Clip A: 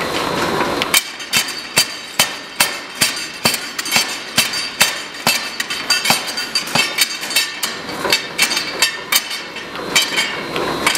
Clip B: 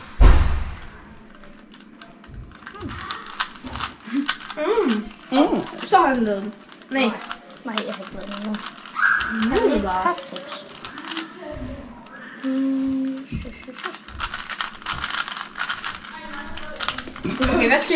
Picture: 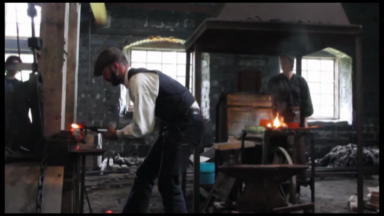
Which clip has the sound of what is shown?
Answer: A